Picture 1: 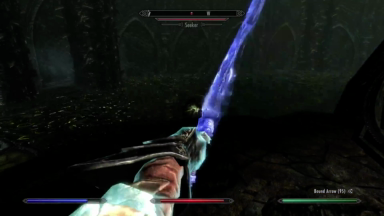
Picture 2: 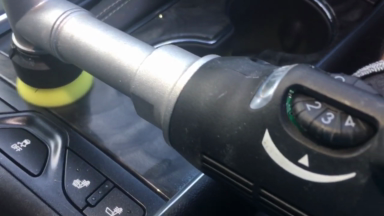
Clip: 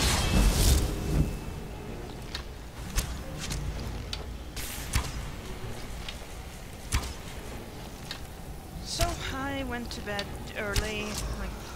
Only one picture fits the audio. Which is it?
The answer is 1